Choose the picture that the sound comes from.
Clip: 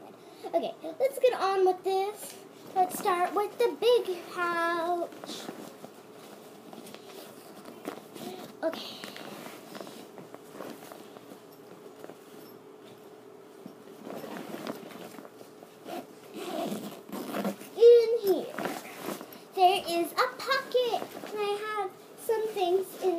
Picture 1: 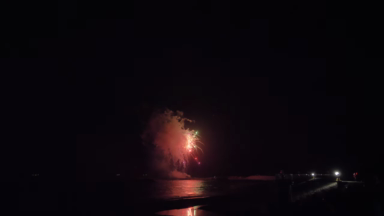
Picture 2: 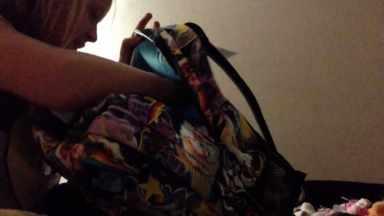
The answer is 2